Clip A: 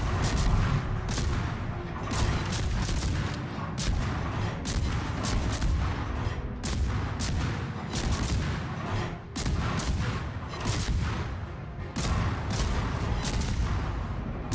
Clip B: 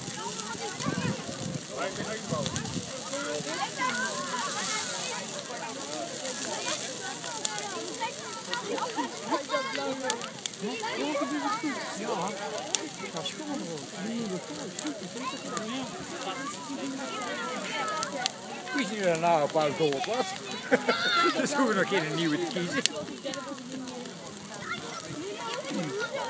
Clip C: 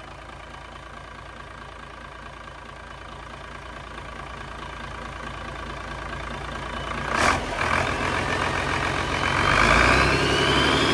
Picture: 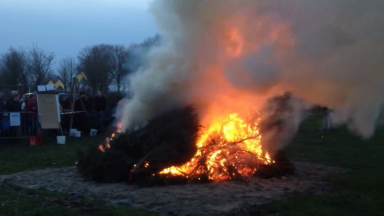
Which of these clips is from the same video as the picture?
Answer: B